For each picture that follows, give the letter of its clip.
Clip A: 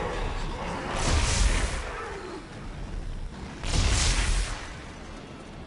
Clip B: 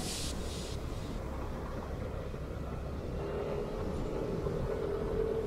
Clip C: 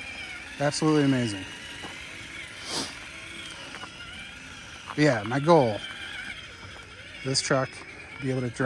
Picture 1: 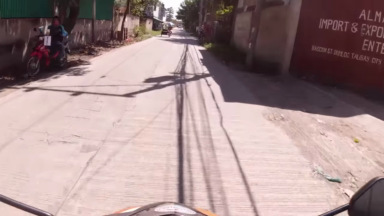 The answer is B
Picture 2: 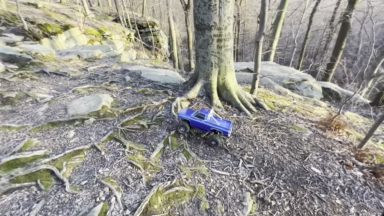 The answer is C